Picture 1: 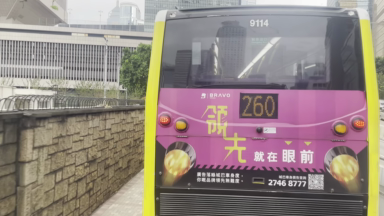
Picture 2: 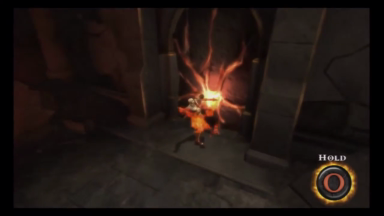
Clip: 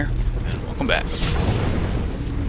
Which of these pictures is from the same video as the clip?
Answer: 2